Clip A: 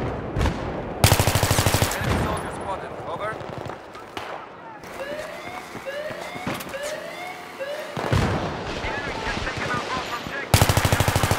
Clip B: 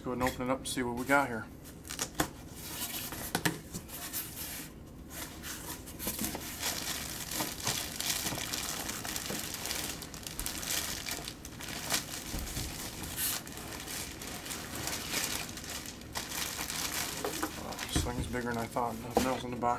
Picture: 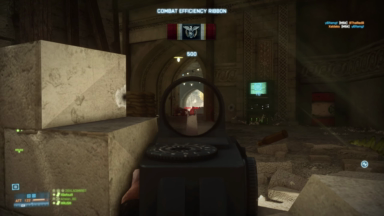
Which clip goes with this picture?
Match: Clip A